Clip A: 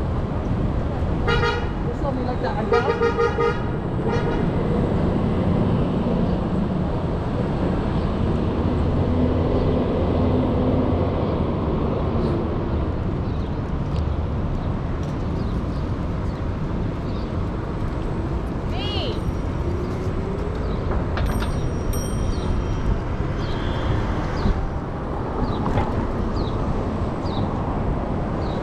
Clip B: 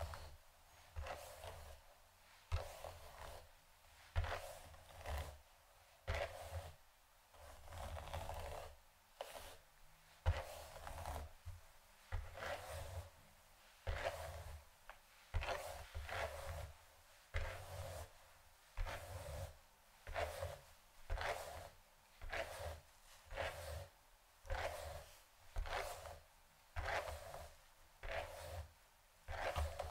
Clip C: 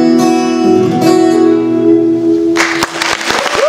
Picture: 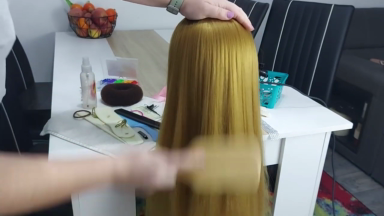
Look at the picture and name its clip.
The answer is B